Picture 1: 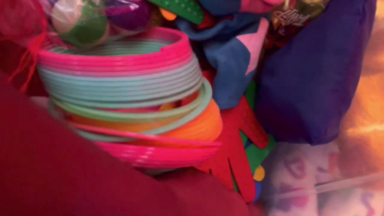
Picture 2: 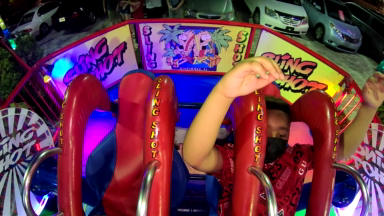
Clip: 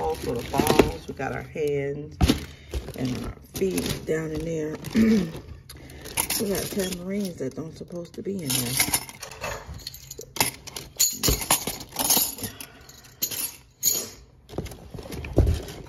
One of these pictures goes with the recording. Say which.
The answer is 1